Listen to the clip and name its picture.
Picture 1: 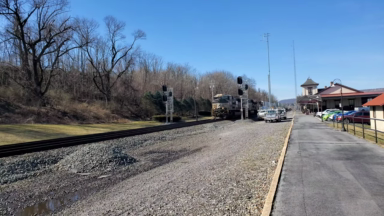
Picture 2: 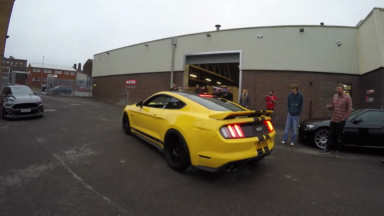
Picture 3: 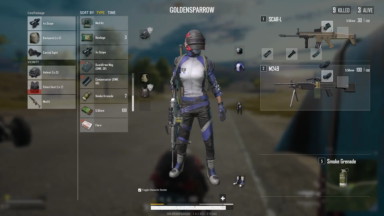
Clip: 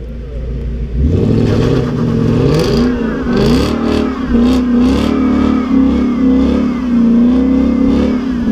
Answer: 2